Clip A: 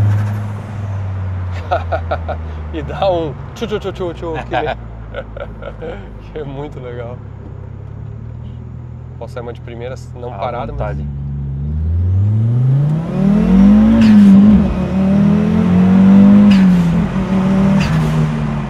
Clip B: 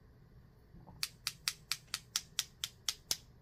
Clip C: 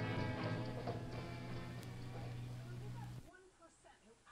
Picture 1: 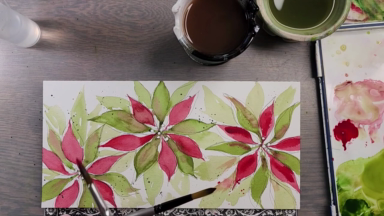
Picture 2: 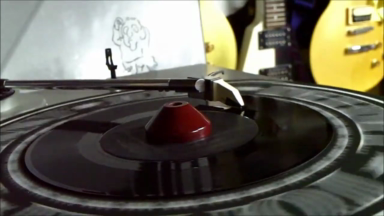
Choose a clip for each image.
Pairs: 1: B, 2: C